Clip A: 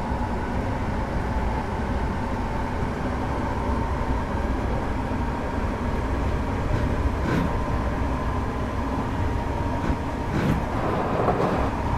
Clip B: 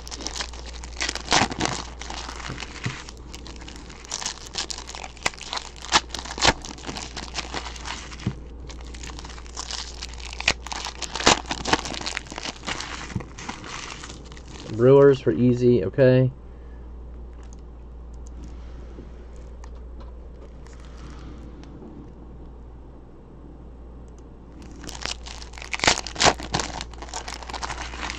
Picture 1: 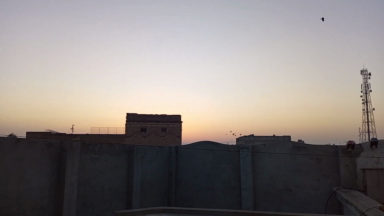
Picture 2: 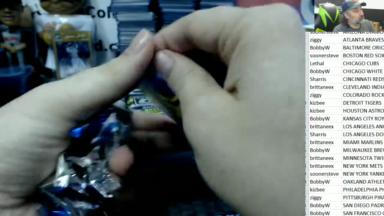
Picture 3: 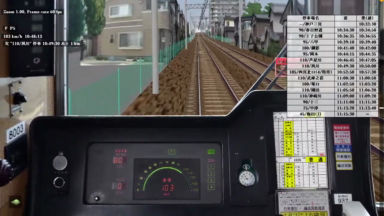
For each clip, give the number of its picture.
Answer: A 3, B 2